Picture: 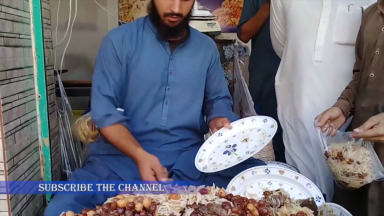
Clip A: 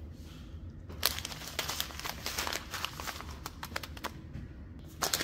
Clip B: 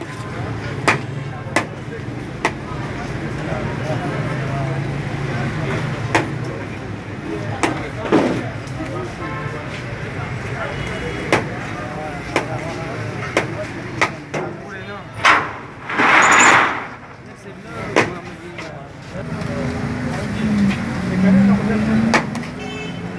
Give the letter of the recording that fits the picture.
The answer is B